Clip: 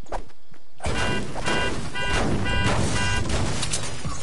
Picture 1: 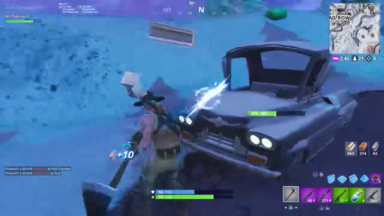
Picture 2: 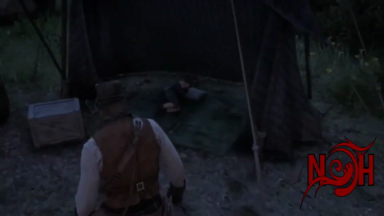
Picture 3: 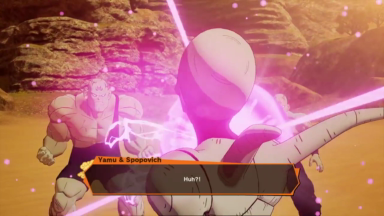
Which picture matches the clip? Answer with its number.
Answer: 1